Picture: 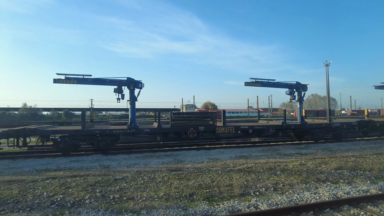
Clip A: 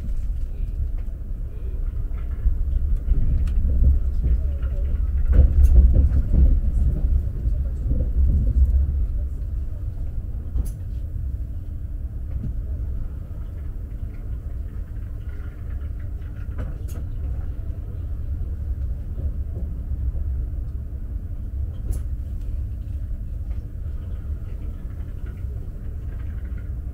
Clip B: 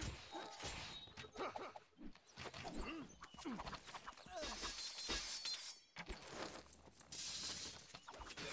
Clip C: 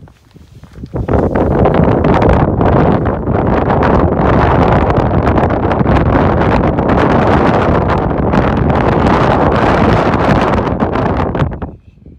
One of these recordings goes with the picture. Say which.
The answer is A